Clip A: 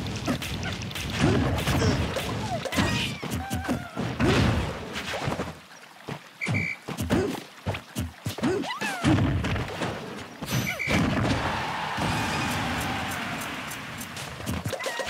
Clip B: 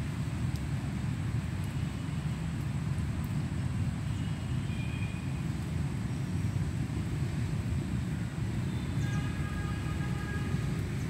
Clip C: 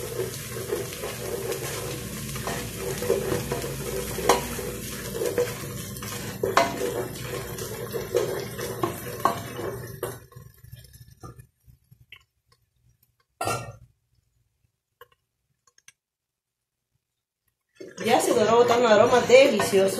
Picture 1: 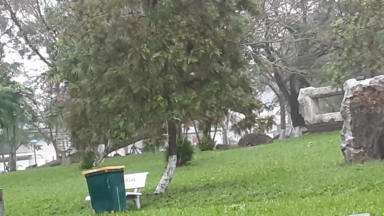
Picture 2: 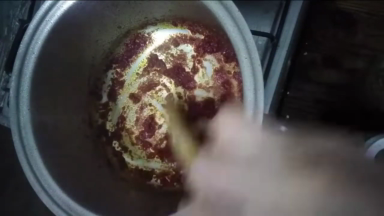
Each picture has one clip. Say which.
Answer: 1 B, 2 C